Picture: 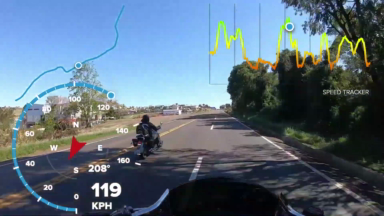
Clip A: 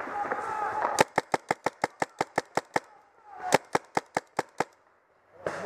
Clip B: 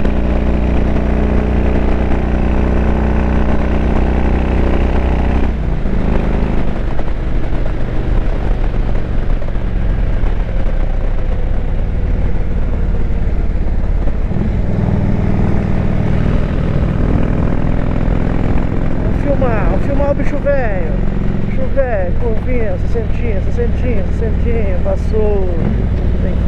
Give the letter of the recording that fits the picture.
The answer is B